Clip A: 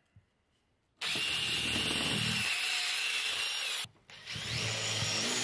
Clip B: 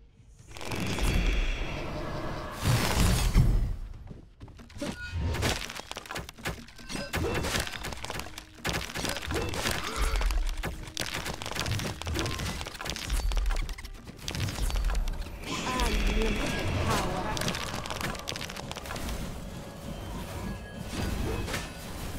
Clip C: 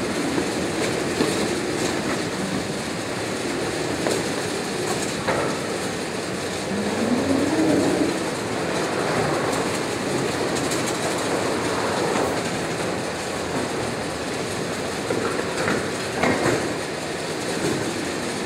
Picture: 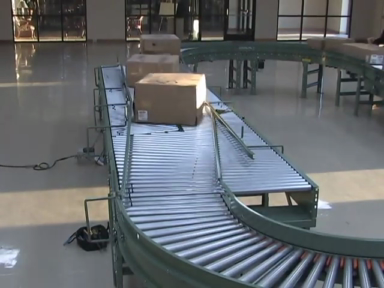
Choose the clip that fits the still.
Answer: C